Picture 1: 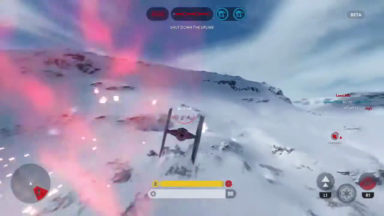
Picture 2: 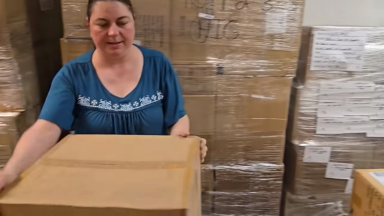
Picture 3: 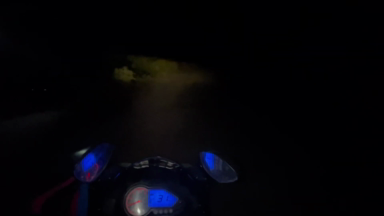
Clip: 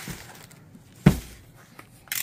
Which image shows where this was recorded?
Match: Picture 2